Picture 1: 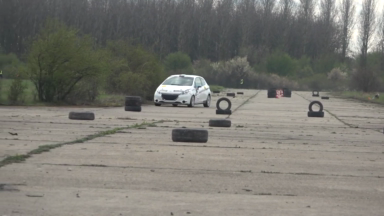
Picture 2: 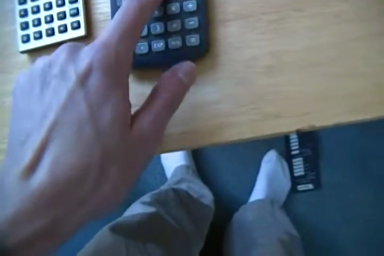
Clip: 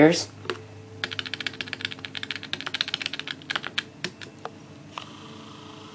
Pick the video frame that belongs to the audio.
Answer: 2